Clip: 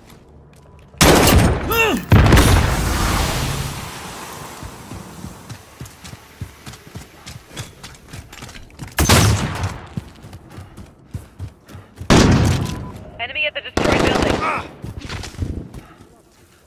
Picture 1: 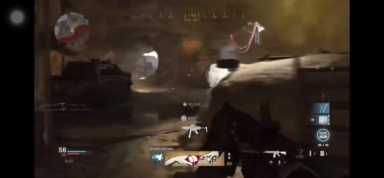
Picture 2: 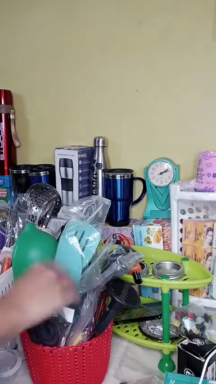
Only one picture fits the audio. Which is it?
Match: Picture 1